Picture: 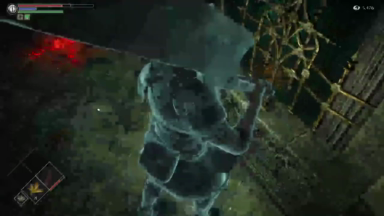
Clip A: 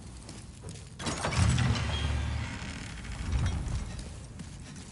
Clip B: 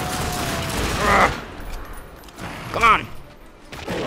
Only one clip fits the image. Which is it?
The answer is A